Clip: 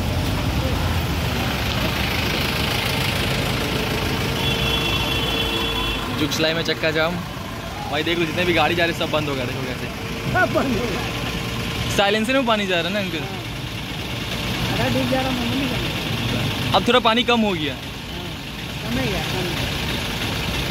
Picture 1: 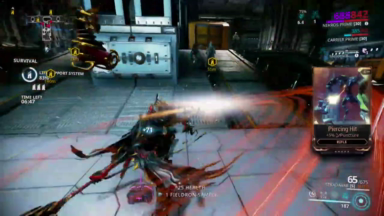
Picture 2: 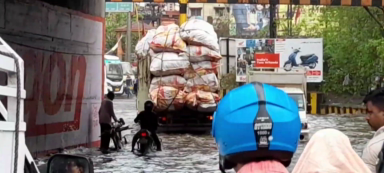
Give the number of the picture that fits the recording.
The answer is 2